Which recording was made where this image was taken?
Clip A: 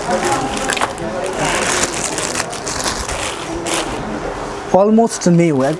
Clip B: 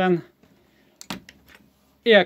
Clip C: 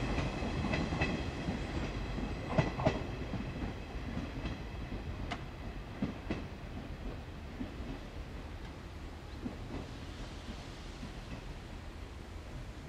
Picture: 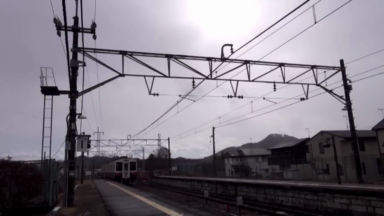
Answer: C